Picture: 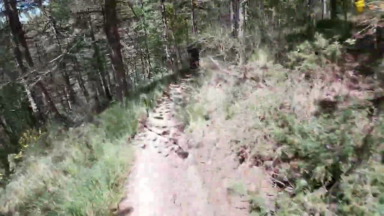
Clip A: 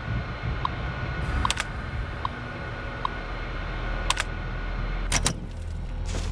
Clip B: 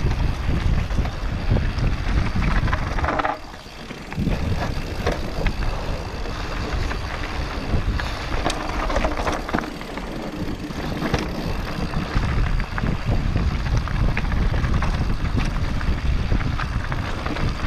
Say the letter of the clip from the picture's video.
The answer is B